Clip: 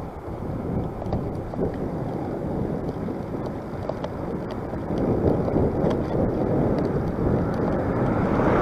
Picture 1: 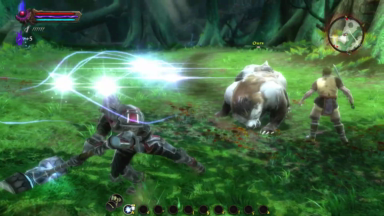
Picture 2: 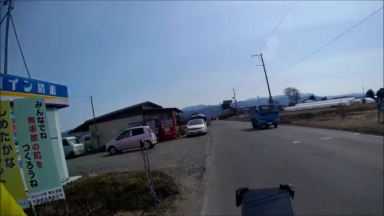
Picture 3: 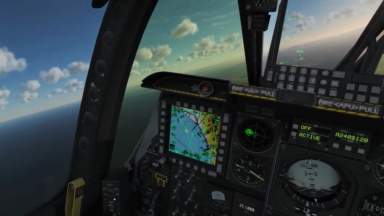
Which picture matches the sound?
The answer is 2